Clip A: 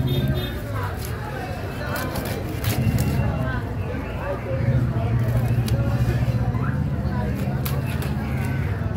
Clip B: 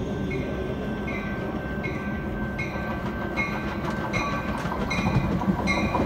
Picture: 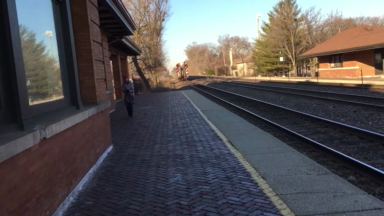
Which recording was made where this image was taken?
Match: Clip B